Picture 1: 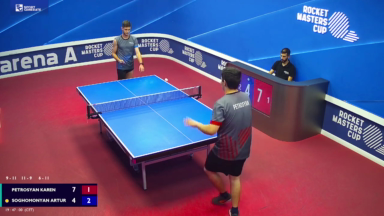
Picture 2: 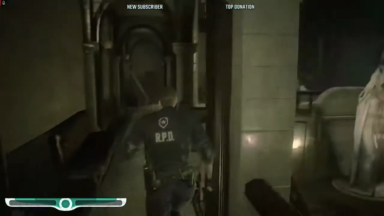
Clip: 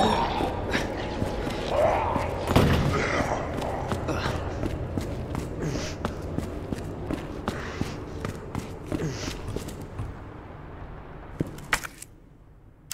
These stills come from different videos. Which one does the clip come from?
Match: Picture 2